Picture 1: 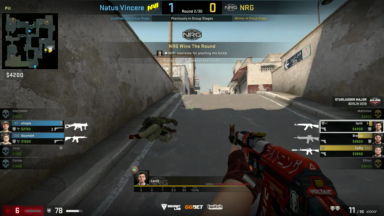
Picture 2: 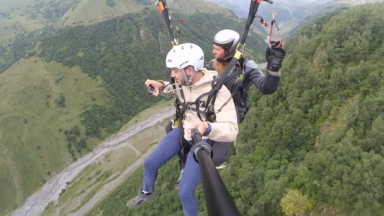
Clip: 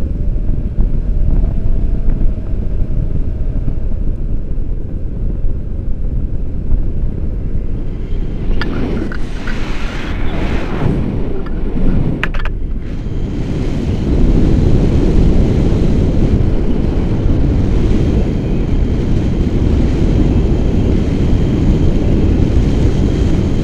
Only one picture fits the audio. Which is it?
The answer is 2